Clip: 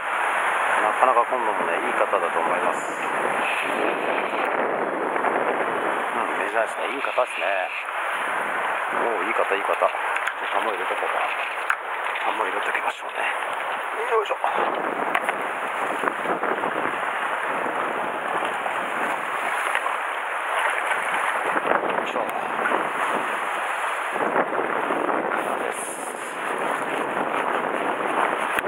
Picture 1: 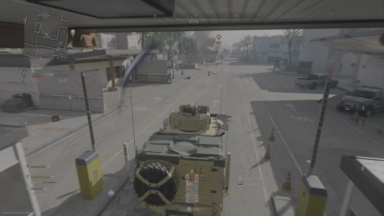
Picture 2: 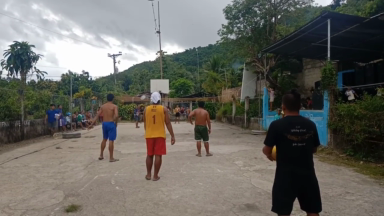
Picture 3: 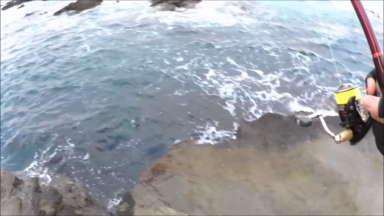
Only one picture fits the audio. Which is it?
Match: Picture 3